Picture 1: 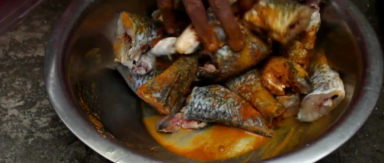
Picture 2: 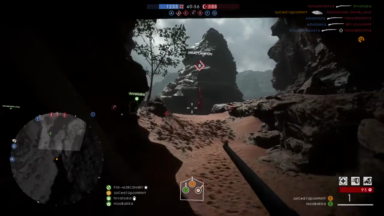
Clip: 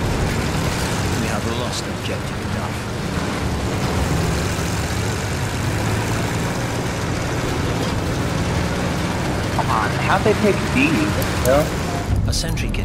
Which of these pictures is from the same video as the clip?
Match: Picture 2